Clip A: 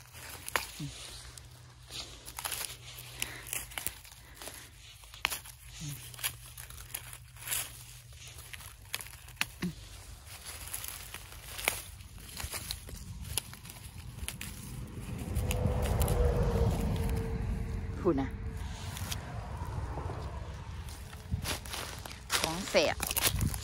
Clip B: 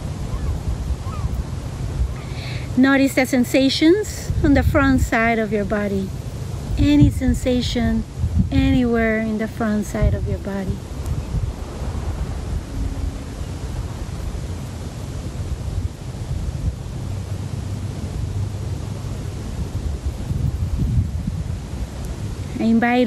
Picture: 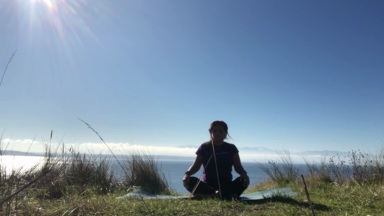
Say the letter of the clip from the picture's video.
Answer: B